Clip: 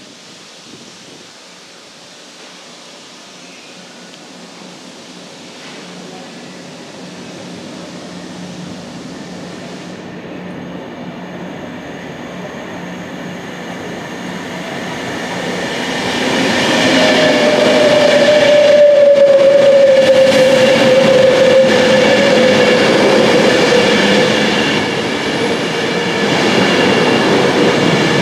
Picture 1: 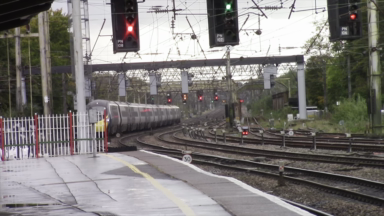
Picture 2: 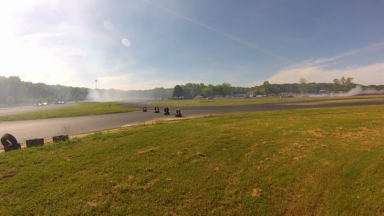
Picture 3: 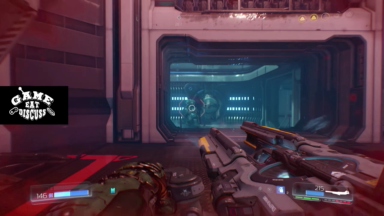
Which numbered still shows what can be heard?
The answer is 1